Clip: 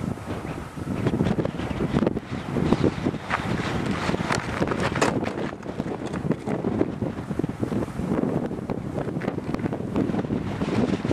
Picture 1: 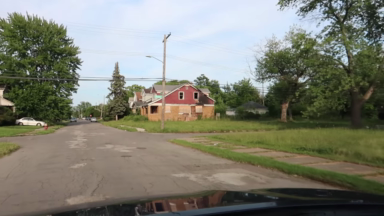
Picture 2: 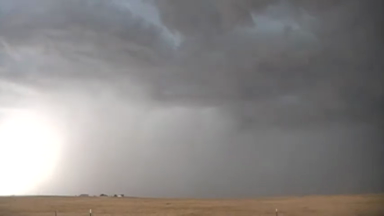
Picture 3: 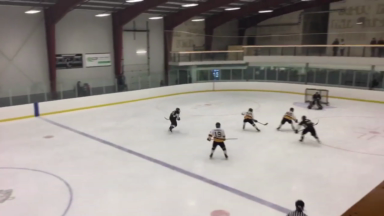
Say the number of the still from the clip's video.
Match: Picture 2